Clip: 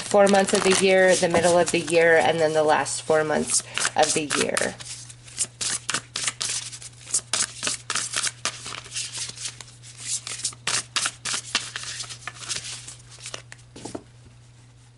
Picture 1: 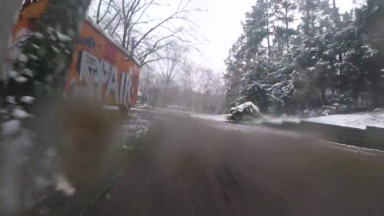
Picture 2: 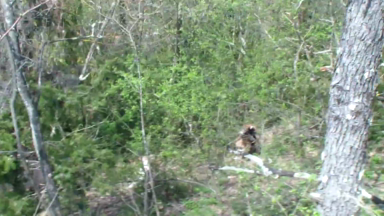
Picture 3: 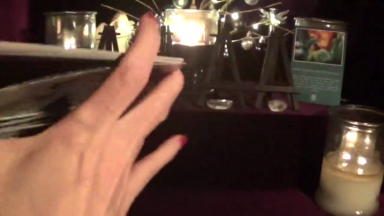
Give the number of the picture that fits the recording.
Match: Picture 3